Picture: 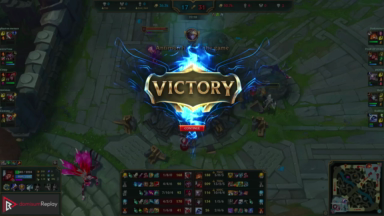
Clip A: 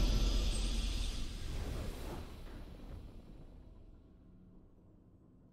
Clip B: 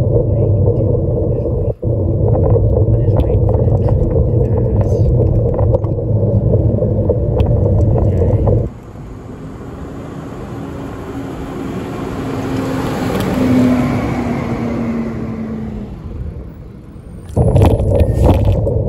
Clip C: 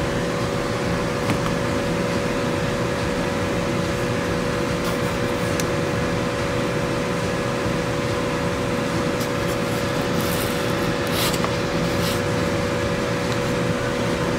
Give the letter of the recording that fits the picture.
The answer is A